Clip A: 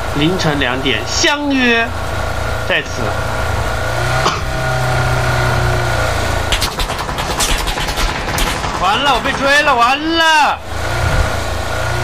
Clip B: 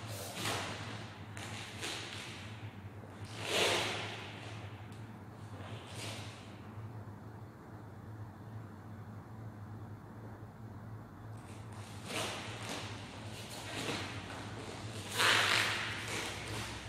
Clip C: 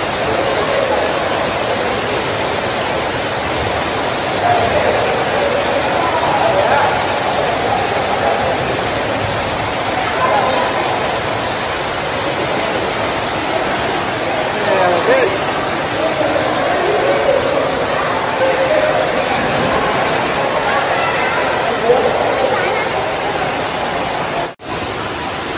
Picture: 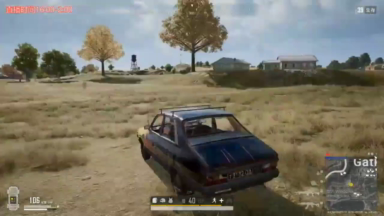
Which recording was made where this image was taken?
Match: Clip A